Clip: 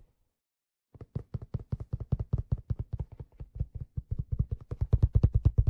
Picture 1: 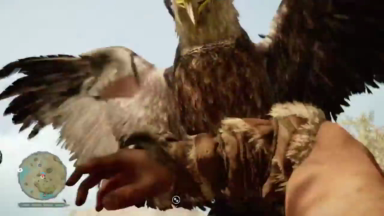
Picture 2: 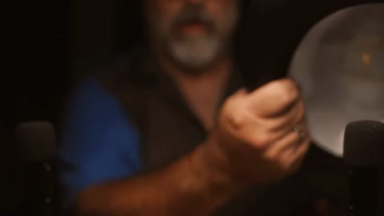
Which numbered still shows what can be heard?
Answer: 2